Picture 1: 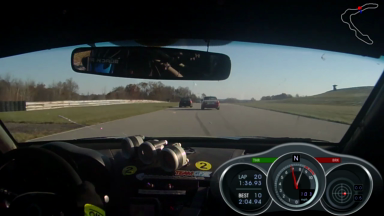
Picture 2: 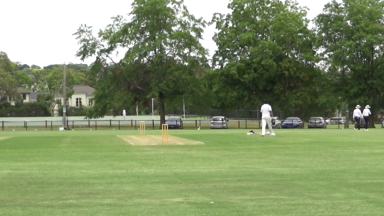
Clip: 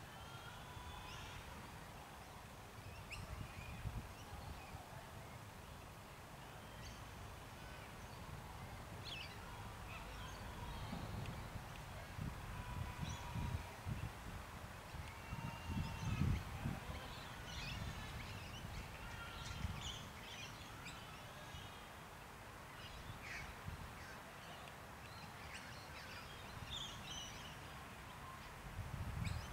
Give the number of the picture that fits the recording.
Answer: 2